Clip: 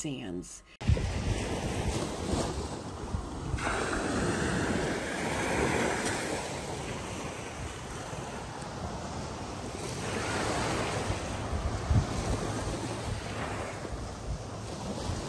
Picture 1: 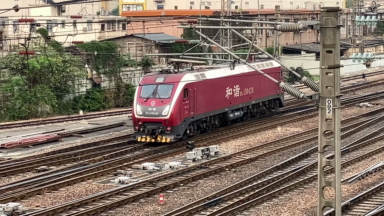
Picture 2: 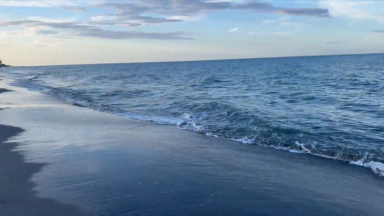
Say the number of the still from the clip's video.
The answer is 2